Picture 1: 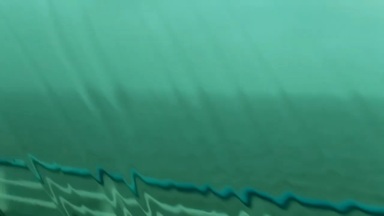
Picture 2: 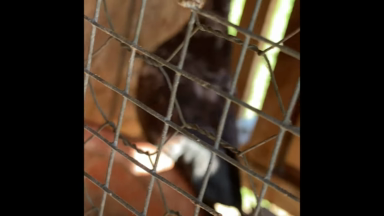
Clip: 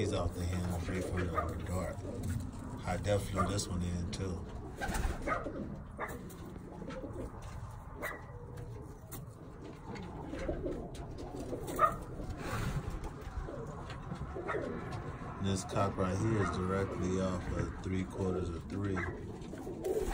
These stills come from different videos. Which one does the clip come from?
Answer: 2